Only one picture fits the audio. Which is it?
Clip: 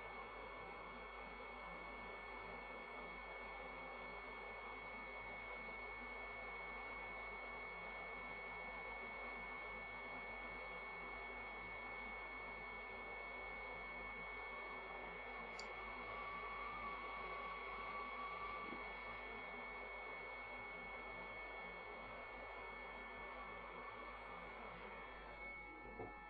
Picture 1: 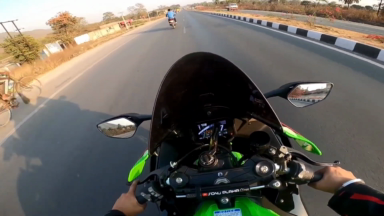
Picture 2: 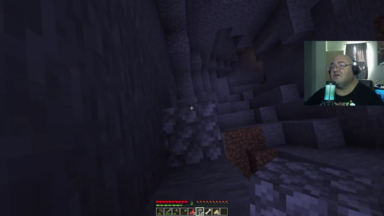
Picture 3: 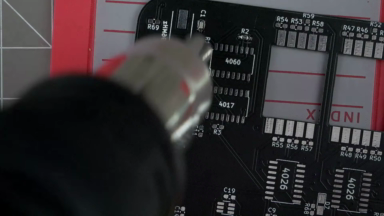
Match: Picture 3